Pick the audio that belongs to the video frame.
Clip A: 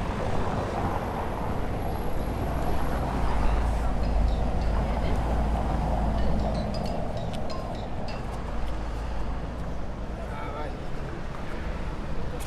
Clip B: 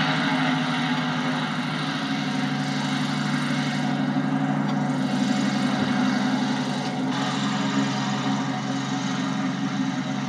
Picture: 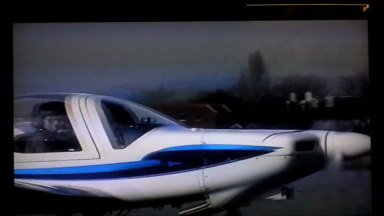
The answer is B